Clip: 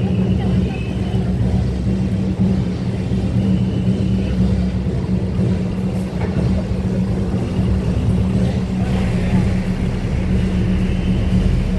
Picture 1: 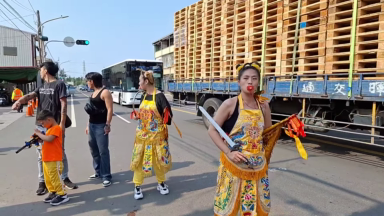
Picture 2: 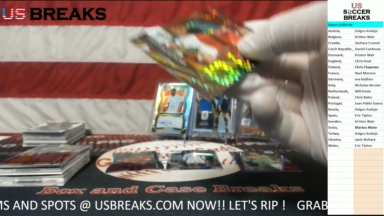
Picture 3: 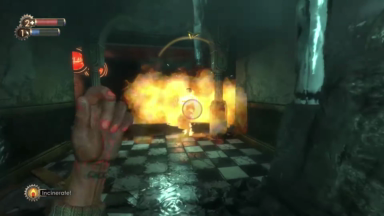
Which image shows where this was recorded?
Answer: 1